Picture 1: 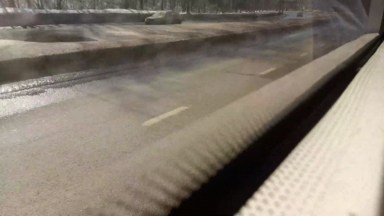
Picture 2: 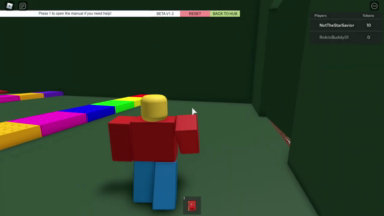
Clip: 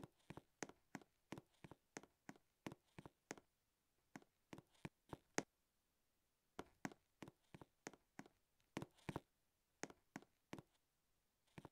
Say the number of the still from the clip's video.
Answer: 2